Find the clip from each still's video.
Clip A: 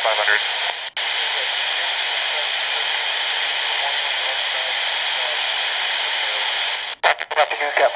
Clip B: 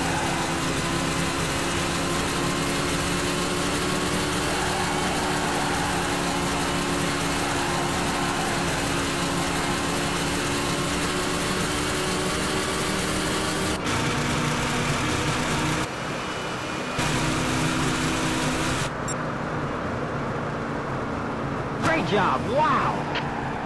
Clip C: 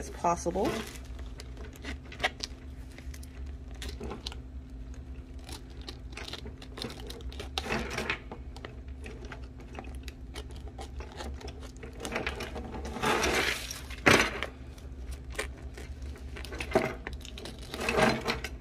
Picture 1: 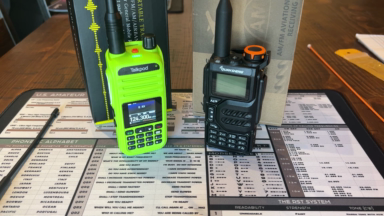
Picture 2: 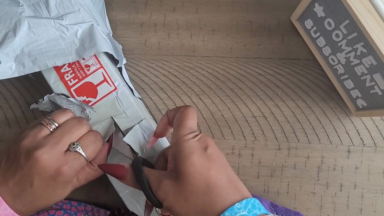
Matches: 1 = A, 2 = C